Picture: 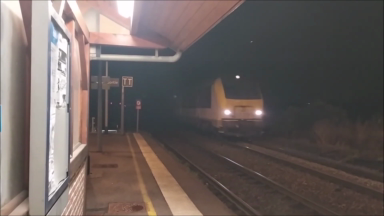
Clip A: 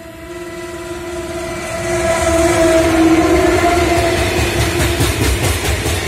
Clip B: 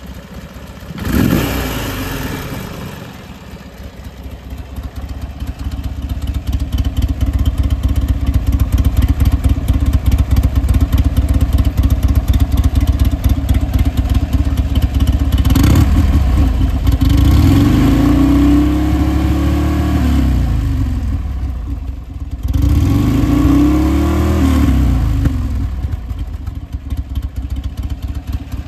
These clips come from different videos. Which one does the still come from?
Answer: A